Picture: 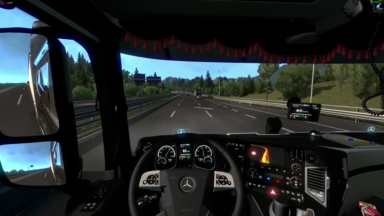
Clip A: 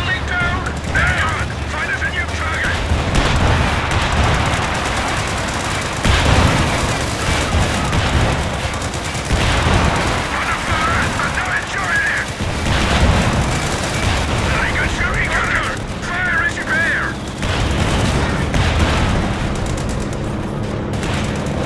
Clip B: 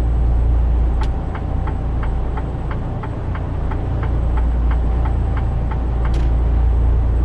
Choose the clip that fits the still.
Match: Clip B